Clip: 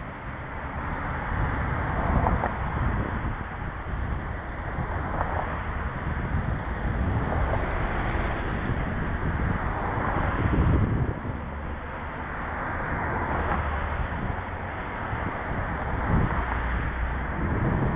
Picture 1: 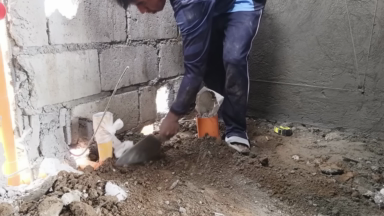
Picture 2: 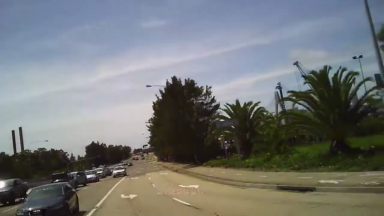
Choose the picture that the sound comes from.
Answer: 2